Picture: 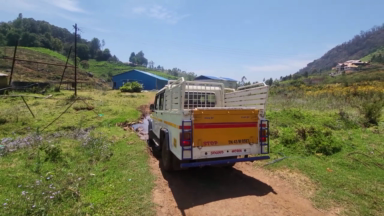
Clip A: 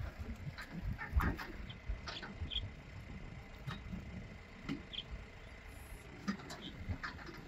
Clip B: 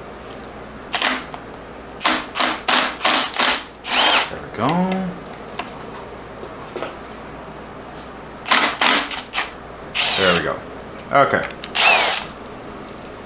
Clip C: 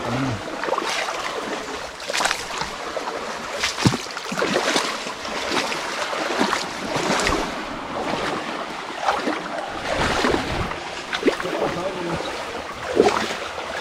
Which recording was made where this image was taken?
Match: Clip A